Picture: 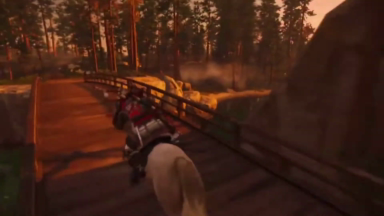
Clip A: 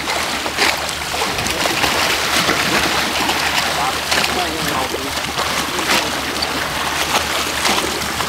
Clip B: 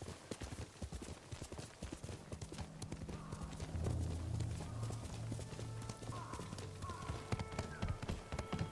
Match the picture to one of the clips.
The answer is B